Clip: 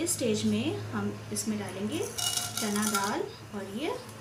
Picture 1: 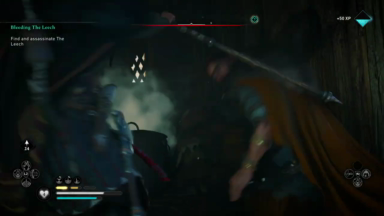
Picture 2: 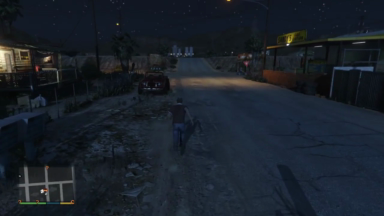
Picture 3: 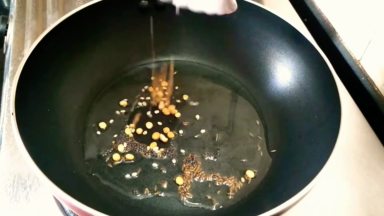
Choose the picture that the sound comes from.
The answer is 3